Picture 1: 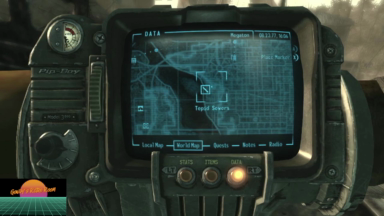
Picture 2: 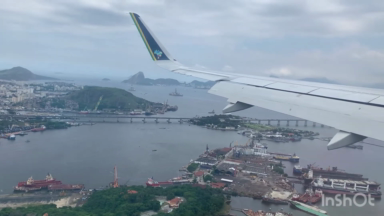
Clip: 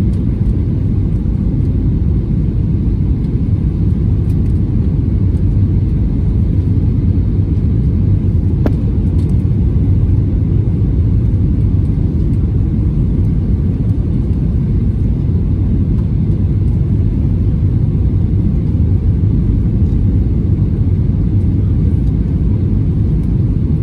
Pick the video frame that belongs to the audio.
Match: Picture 2